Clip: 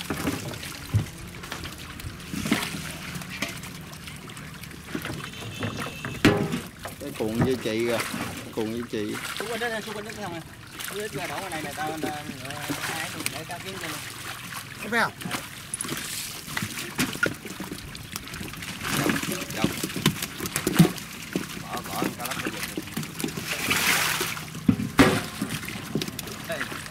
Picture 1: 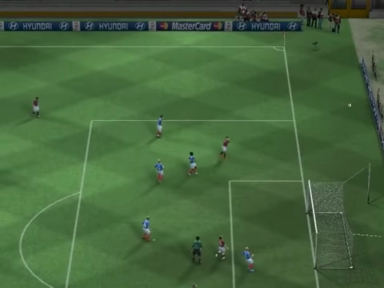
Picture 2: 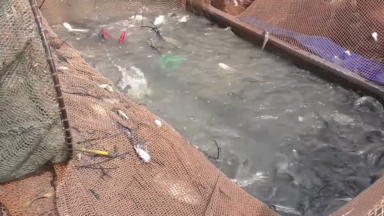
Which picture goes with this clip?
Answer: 2